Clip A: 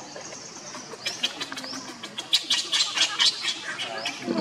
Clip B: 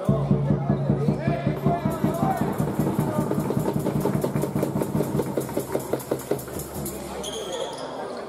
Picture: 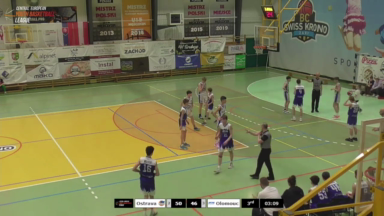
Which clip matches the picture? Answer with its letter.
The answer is B